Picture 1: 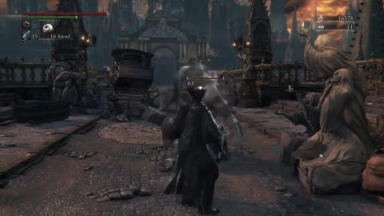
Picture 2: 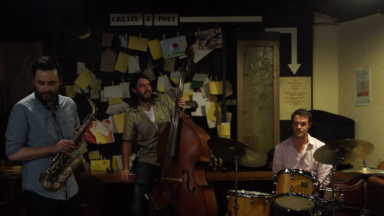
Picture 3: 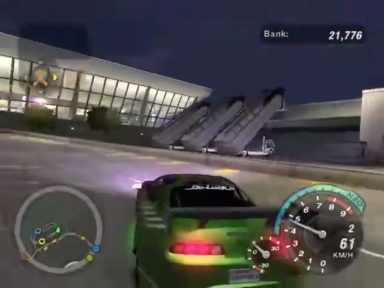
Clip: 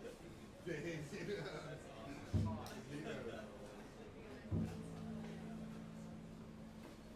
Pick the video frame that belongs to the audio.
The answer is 2